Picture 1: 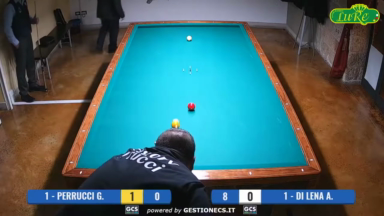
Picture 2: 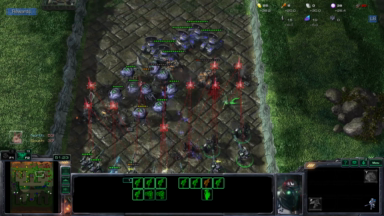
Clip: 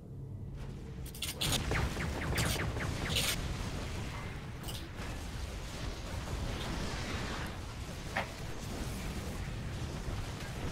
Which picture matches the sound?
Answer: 2